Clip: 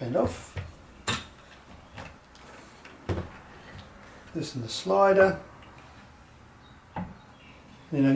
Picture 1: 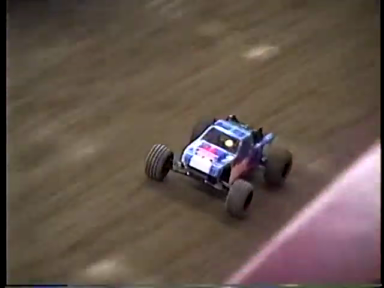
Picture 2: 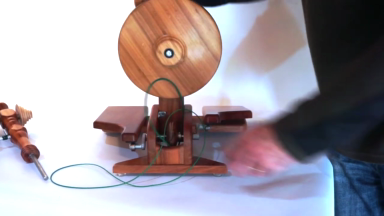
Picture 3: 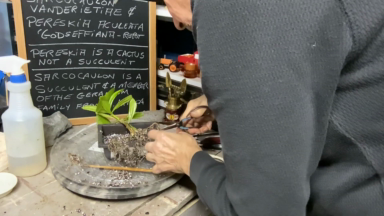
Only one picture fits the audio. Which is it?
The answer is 2